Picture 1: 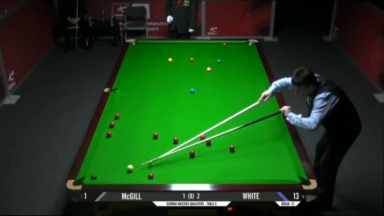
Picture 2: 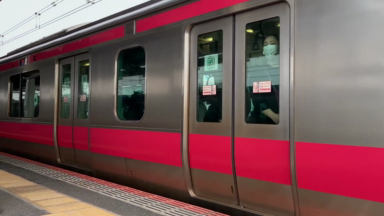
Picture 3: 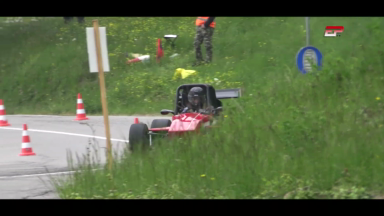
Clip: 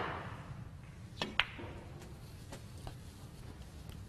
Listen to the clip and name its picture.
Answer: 1